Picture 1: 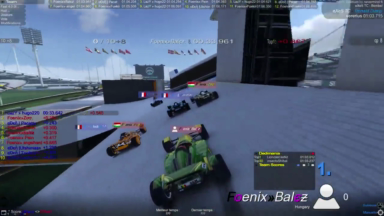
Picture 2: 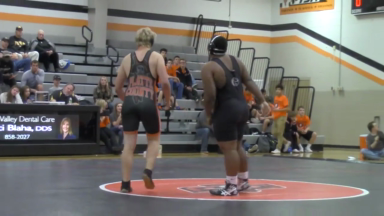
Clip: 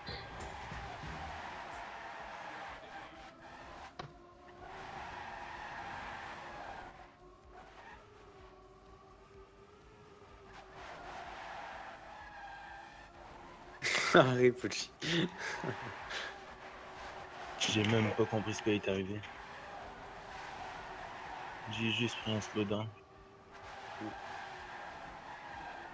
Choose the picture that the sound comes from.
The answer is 1